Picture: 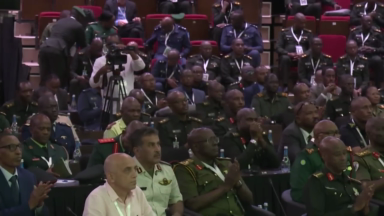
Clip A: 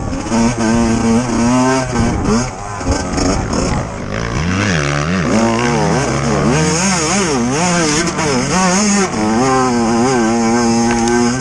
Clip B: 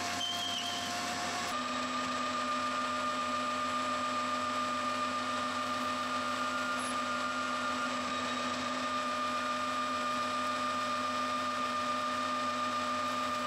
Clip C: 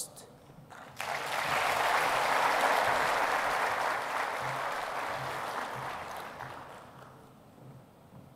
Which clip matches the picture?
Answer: C